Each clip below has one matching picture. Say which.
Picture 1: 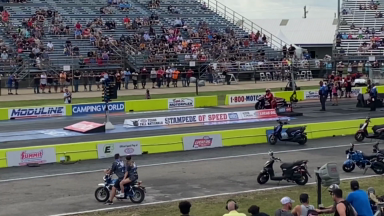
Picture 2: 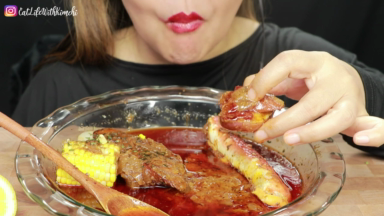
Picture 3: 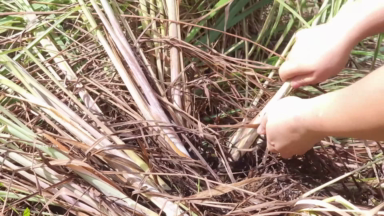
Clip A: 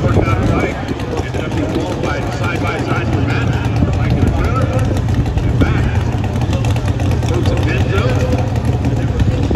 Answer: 1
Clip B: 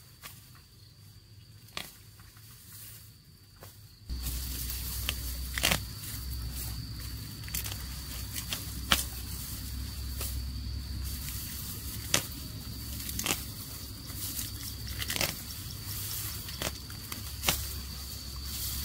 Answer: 3